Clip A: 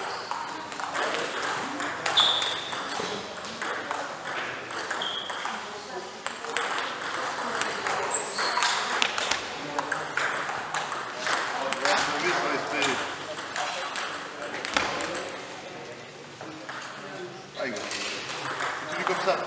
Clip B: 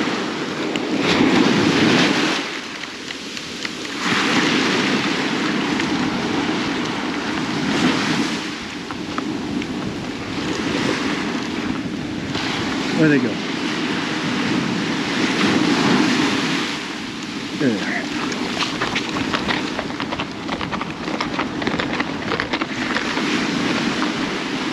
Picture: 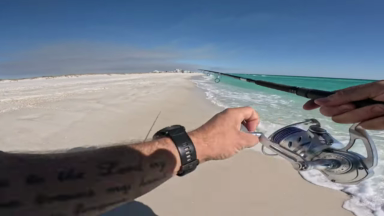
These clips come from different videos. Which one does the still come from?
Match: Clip B